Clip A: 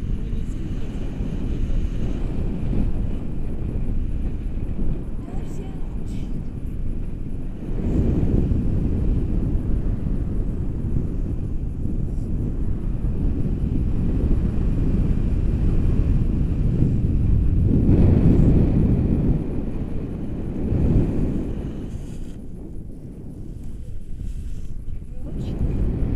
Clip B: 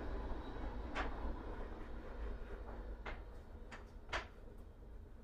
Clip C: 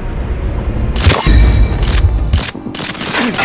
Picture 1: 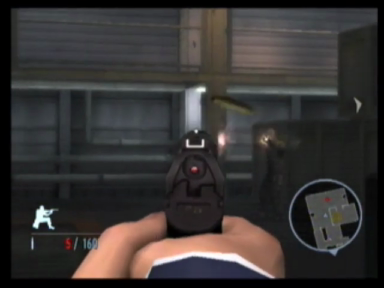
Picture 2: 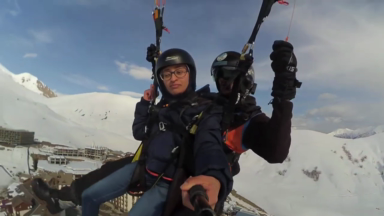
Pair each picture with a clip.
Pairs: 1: C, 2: A